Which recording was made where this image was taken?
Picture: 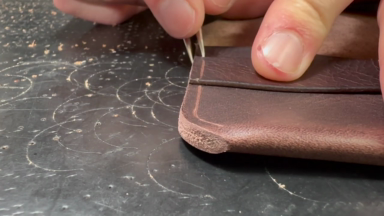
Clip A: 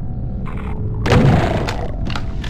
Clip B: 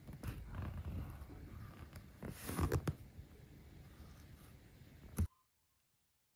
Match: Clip B